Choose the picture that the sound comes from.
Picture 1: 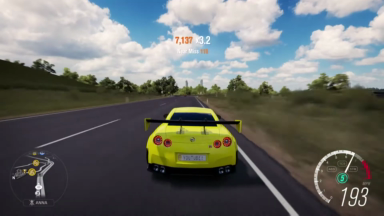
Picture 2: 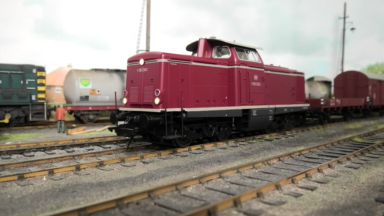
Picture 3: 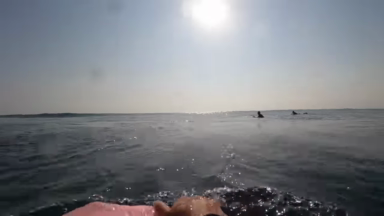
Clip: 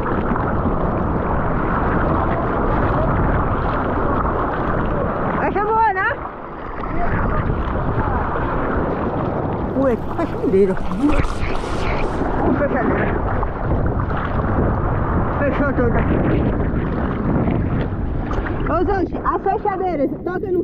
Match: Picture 3